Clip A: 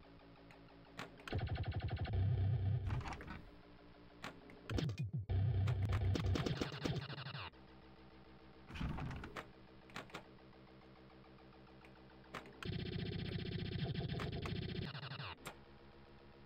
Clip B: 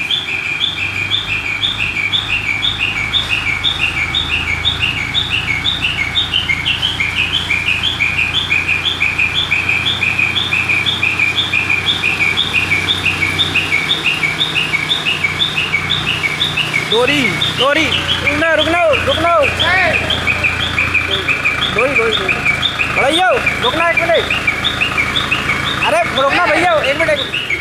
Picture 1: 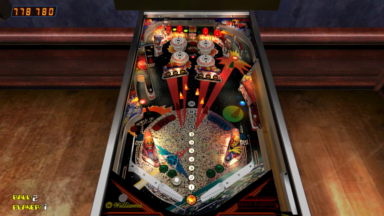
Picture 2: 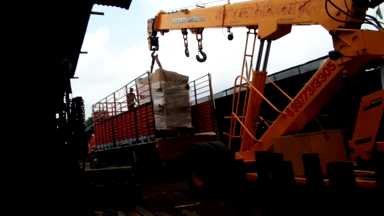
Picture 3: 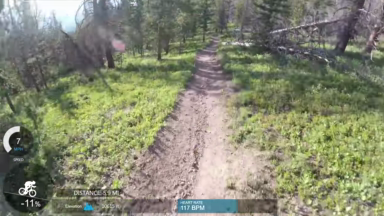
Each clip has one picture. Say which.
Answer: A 1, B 2